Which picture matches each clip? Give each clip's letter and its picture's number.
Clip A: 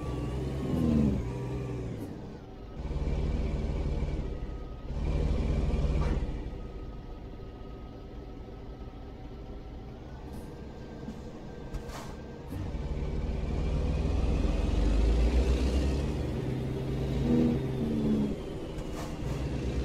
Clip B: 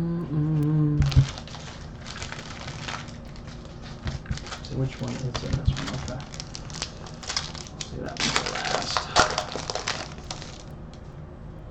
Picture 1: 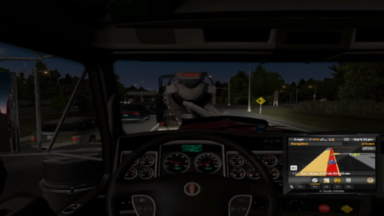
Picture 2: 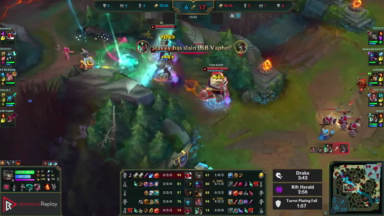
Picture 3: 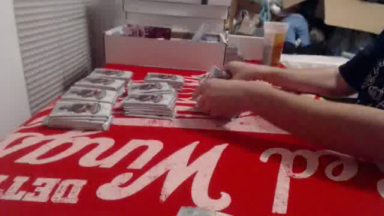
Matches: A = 1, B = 3